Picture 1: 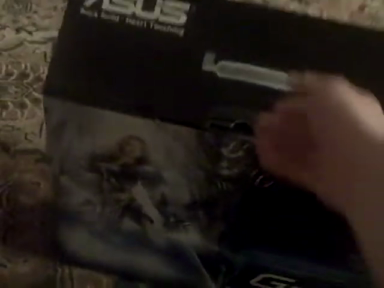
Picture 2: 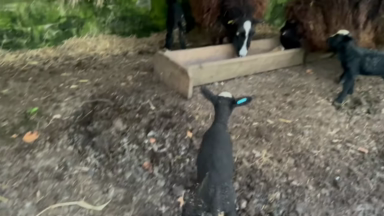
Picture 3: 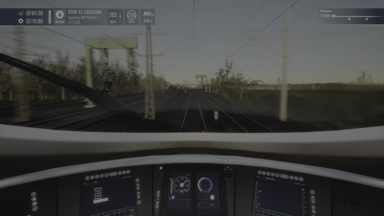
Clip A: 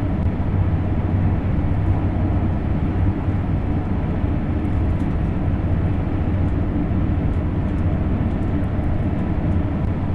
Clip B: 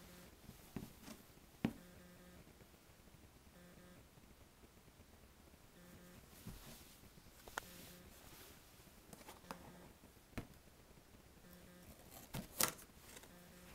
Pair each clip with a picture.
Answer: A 3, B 1